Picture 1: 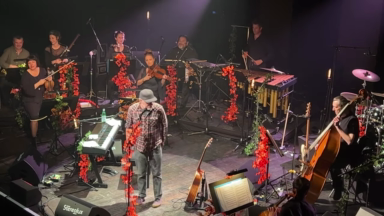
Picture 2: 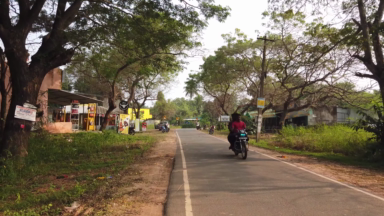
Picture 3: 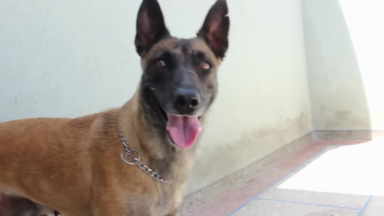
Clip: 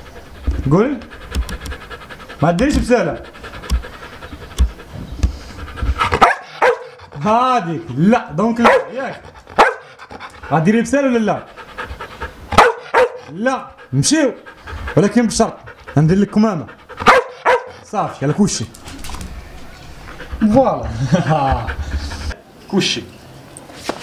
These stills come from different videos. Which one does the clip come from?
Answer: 3